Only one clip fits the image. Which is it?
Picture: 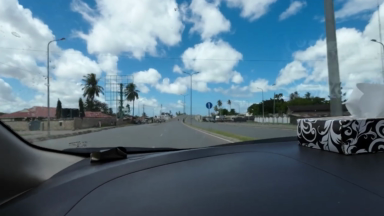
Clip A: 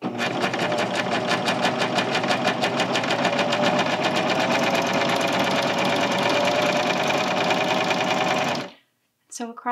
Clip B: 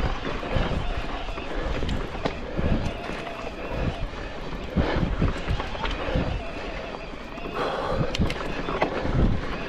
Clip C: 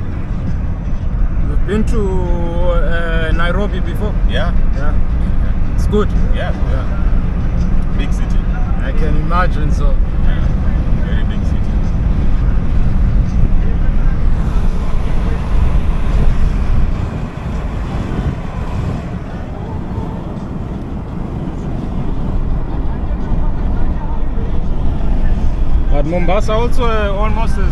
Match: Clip C